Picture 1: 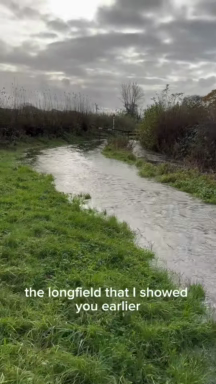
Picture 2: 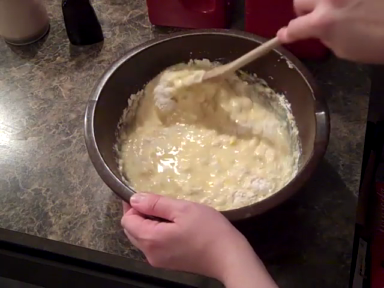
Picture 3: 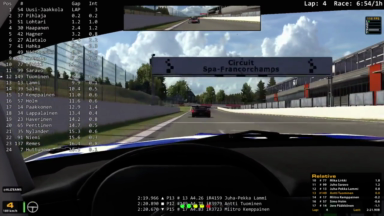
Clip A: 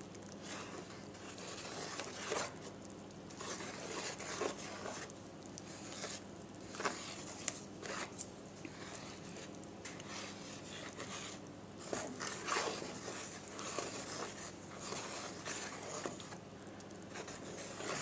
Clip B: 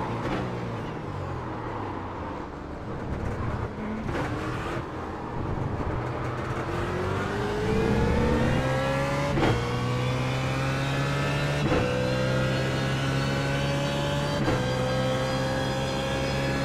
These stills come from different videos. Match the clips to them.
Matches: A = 2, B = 3